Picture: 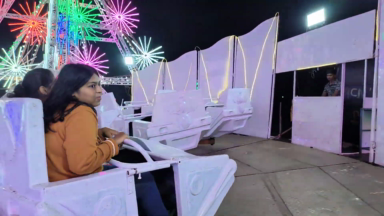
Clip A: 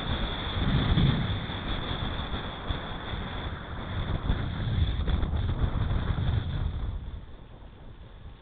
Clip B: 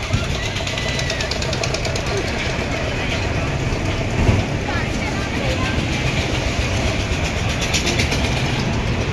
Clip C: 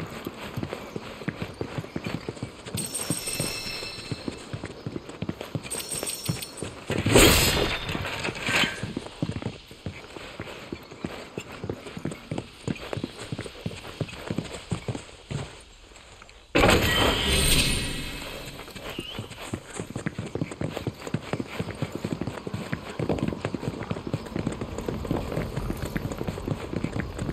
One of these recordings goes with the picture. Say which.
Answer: B